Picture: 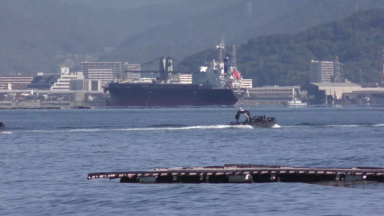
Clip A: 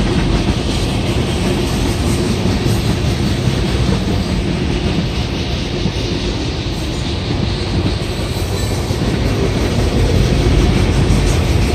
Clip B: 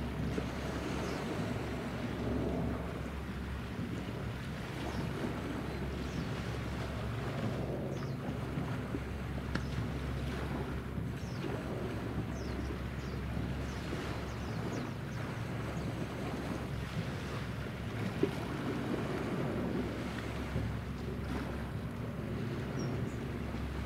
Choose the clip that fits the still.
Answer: B